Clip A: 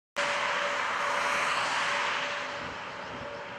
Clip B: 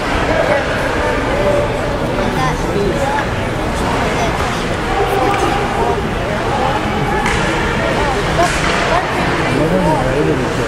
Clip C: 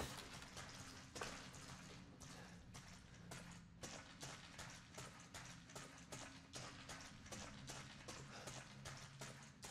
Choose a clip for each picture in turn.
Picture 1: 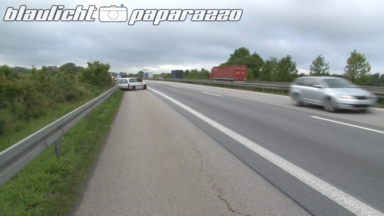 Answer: A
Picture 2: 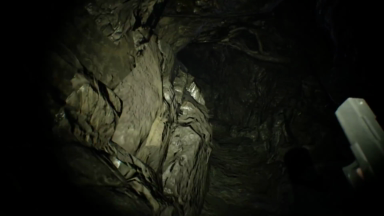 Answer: C